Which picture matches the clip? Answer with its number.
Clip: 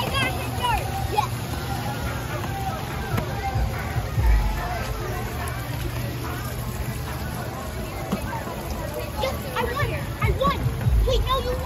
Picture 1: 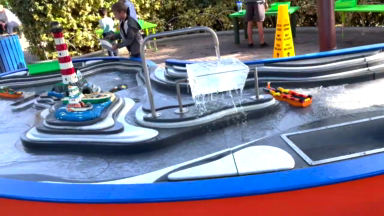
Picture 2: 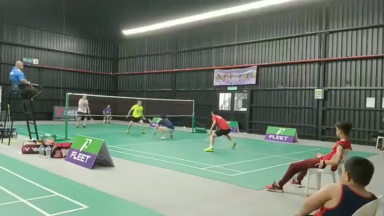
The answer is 1